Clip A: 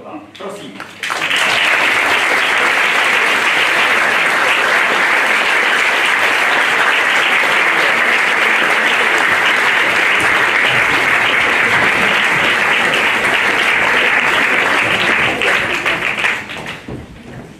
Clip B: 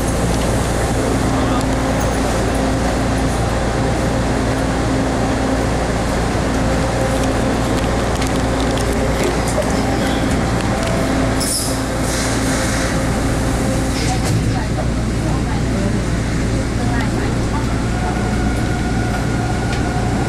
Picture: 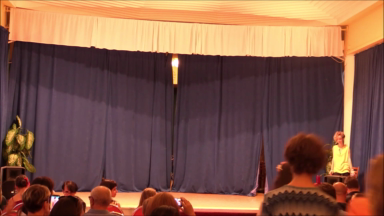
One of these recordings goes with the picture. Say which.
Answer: A